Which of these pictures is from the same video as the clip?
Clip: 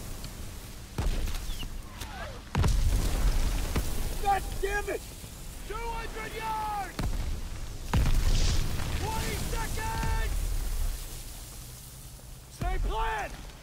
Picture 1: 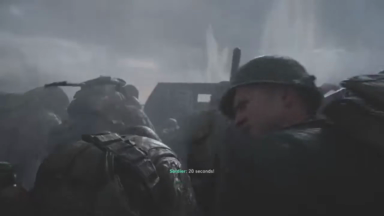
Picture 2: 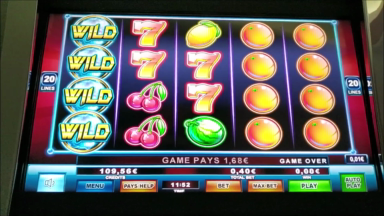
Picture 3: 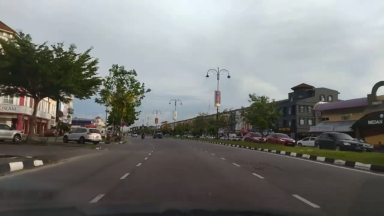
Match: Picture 1